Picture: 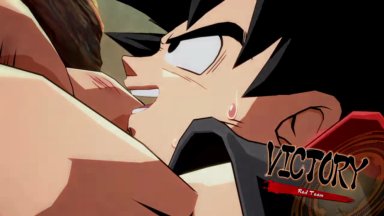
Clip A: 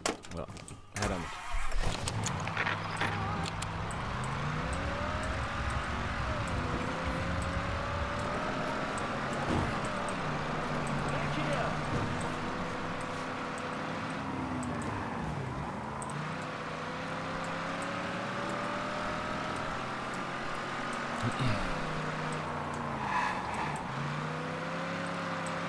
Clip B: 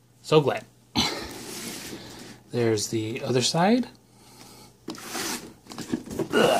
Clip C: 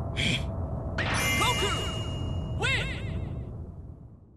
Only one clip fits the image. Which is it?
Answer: C